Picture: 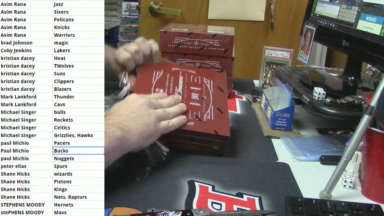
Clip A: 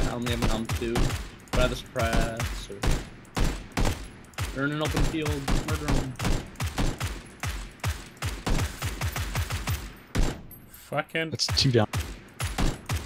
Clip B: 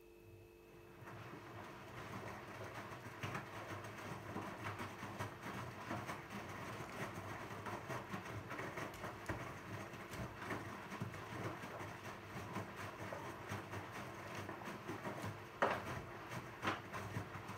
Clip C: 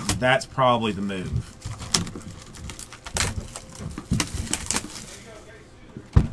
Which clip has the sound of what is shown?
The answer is C